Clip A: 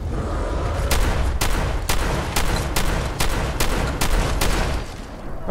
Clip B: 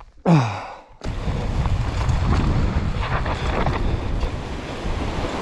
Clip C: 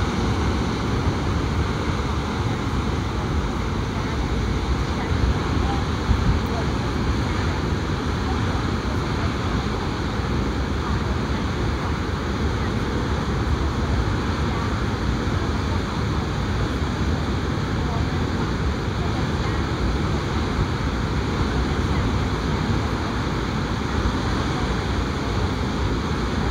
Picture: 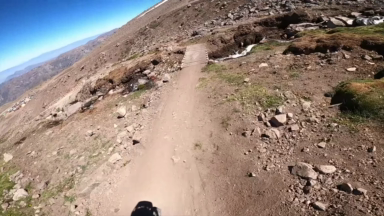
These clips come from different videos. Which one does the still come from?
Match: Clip B